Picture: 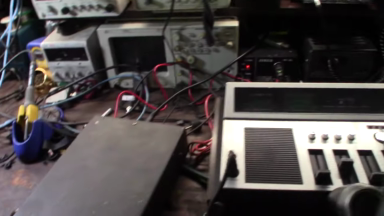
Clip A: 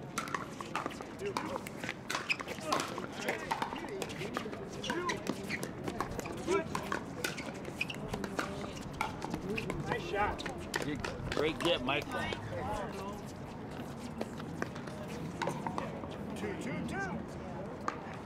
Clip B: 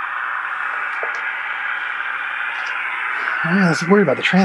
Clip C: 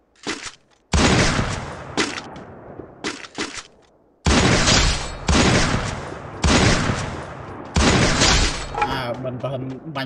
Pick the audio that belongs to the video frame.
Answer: B